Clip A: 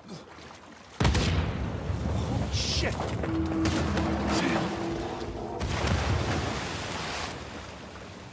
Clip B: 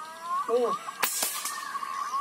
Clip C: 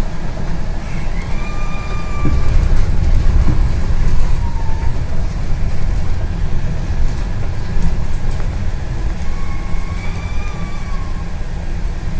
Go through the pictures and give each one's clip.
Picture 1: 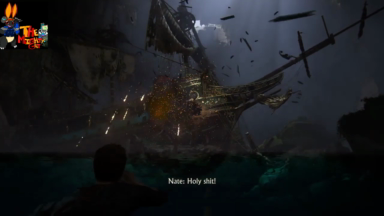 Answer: A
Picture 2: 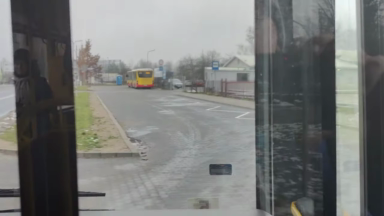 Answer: C